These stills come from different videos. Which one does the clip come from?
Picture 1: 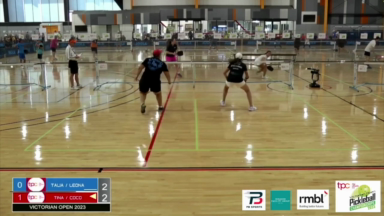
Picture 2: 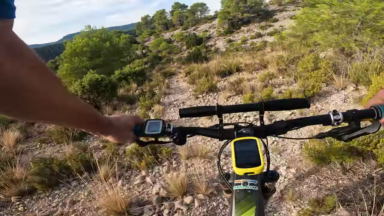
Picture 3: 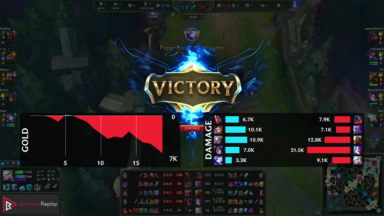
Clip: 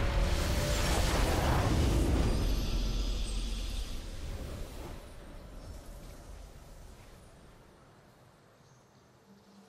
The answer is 3